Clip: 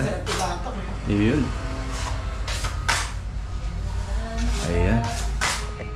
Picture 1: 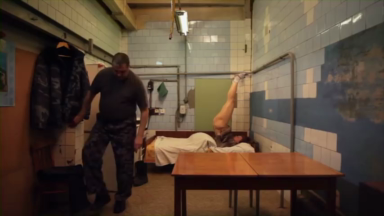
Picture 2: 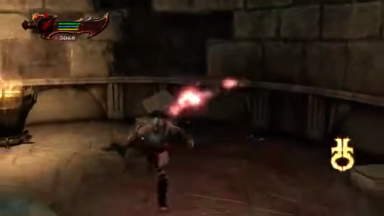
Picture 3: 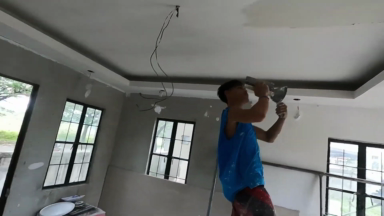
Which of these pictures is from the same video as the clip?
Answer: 3